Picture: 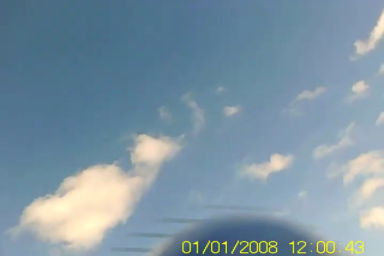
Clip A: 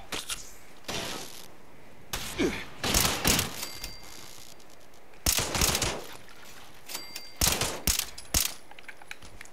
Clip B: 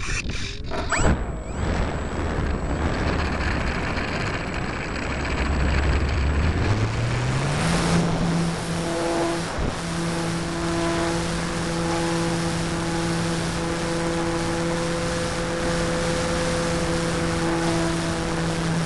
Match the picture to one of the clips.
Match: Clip B